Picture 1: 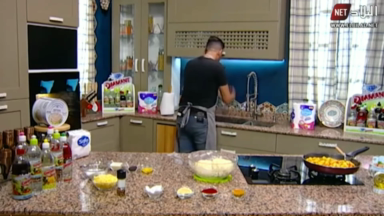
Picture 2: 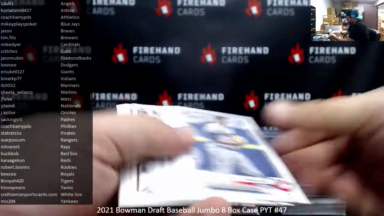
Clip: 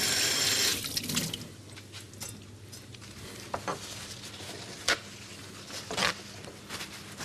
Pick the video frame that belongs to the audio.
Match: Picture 1